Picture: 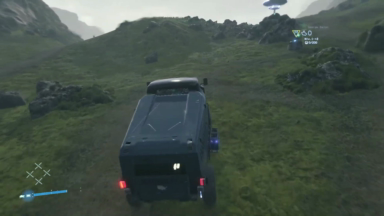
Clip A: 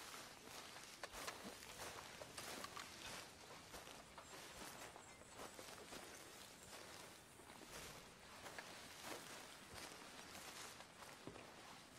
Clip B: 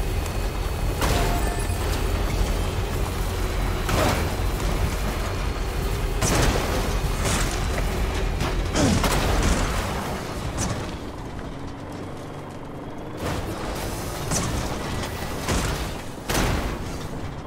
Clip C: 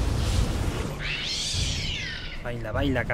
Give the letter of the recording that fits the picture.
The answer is B